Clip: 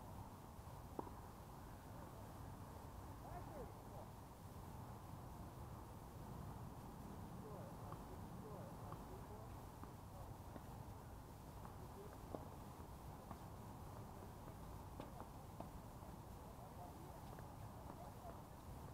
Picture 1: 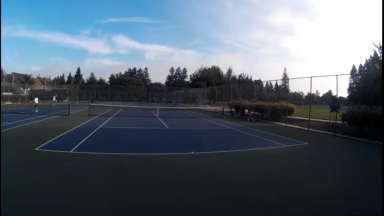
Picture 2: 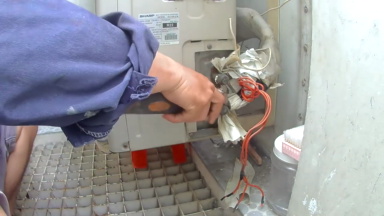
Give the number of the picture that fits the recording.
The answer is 1